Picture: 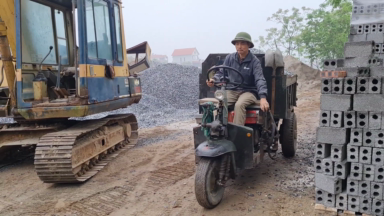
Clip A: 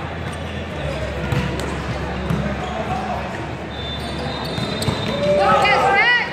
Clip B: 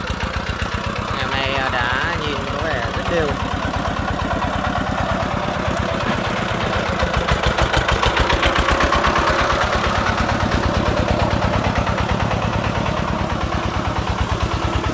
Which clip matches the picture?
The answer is B